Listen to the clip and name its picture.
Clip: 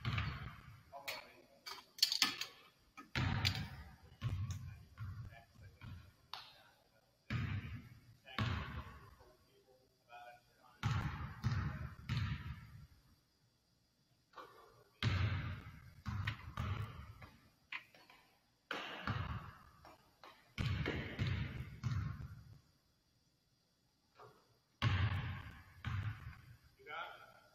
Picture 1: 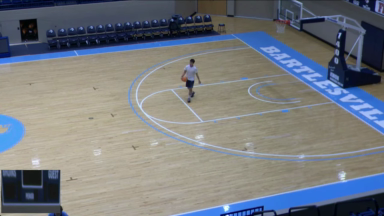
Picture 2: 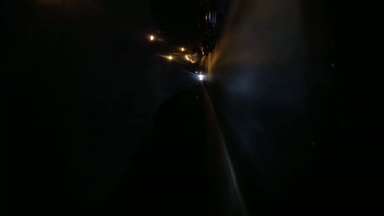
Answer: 1